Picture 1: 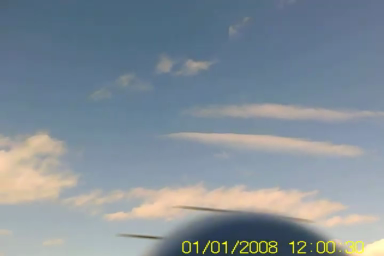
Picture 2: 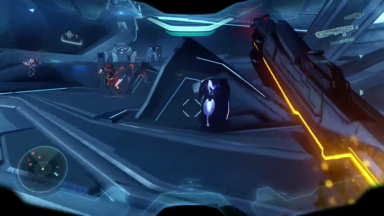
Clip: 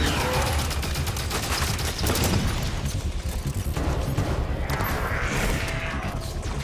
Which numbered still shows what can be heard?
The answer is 2